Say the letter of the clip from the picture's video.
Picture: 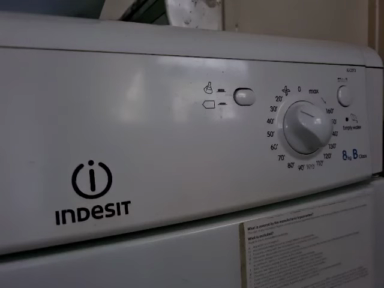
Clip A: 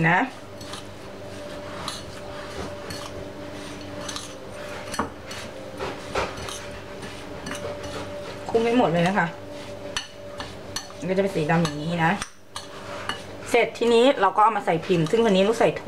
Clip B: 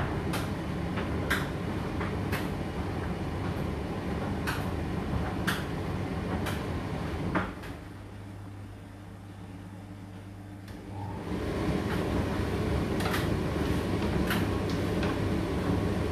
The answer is B